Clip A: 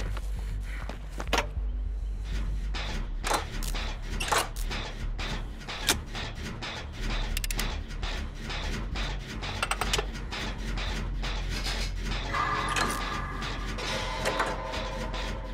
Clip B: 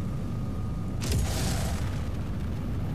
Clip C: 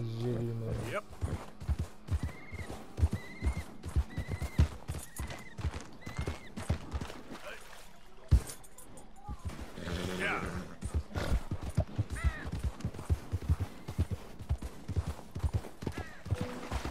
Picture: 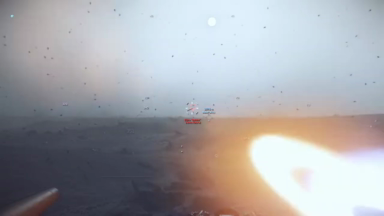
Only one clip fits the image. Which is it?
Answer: B